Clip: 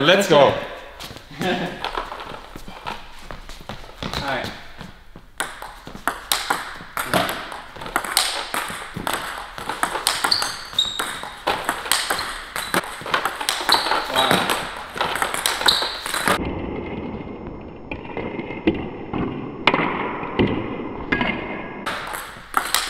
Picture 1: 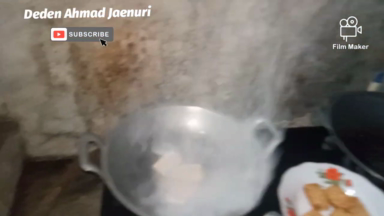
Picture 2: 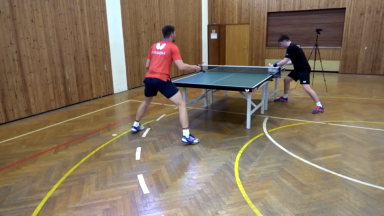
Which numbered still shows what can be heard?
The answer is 2